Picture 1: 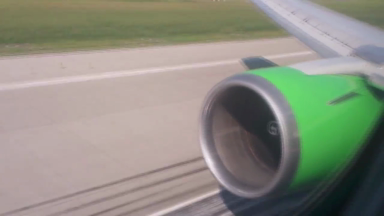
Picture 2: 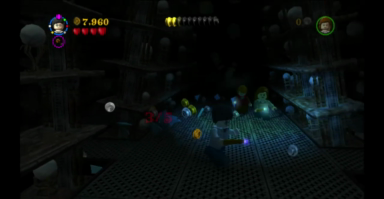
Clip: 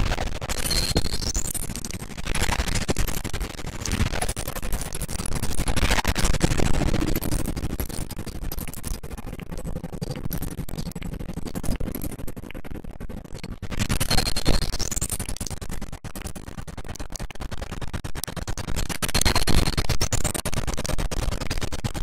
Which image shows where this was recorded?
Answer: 2